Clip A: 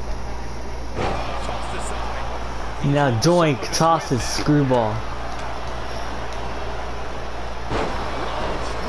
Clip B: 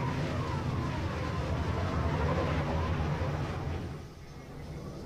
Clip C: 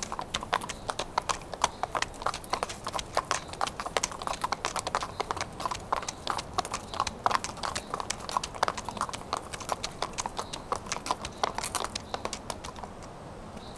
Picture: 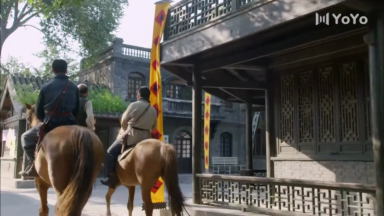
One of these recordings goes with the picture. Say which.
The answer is C